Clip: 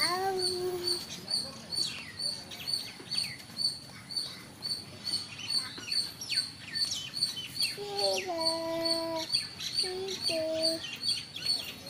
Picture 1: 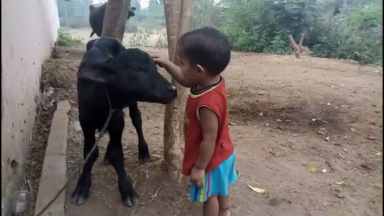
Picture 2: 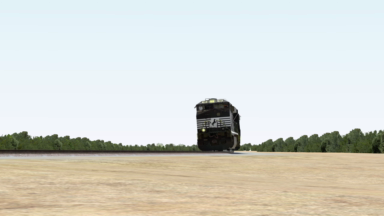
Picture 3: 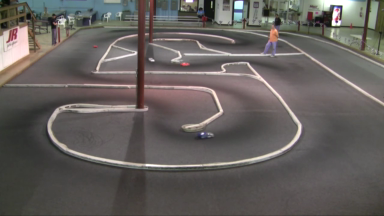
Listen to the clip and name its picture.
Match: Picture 1